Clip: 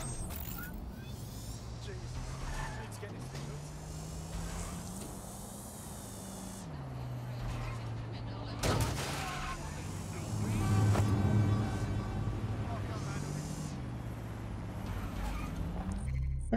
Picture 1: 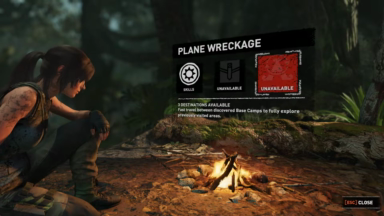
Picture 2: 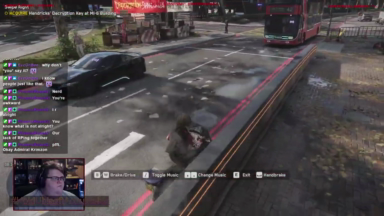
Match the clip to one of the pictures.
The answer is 2